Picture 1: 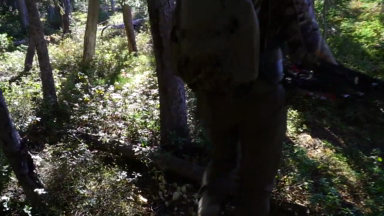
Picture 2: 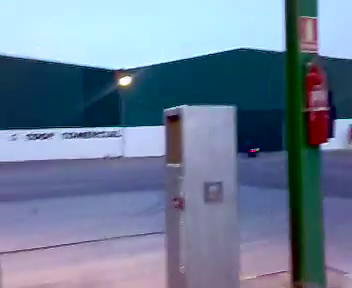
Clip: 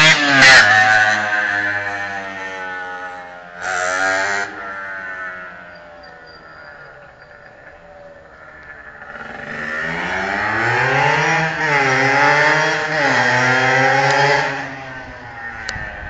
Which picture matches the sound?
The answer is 2